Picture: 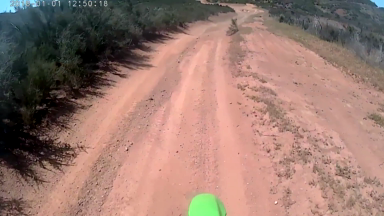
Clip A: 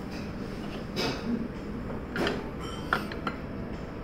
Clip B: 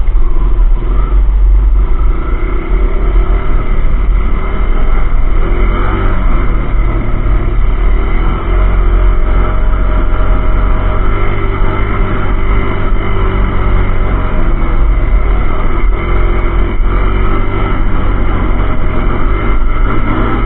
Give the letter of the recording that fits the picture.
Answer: B